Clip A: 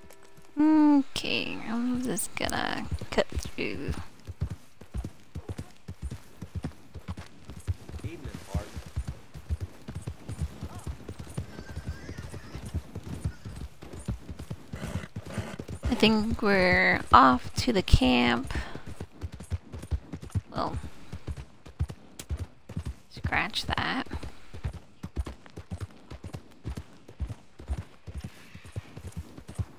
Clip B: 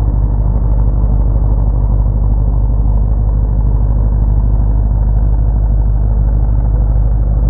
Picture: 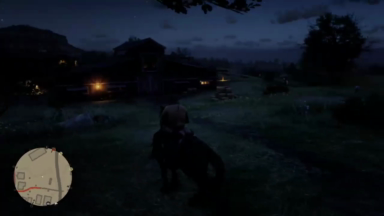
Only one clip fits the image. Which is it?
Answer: A